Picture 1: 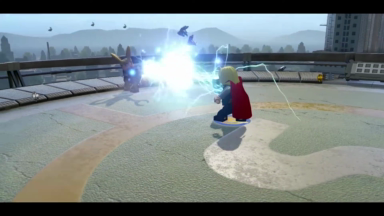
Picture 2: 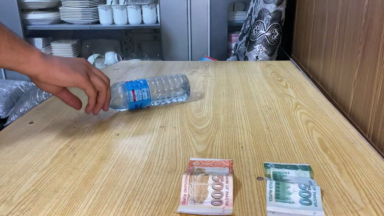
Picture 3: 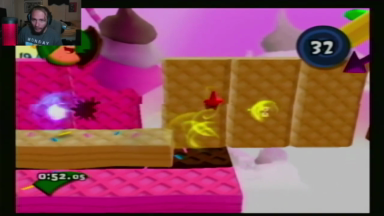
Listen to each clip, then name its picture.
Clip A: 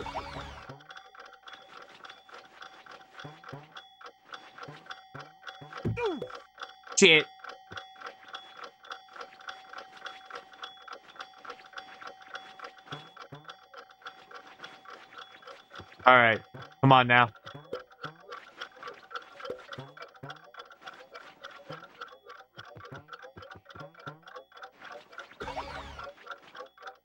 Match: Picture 3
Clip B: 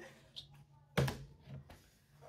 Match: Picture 2